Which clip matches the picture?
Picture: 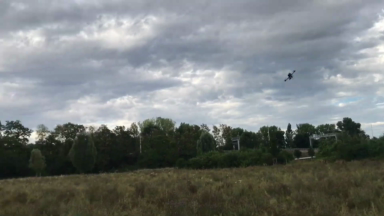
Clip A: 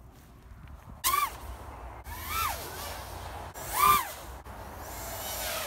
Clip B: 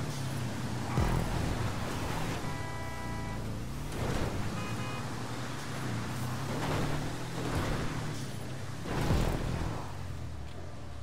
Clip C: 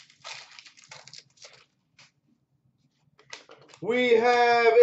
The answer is A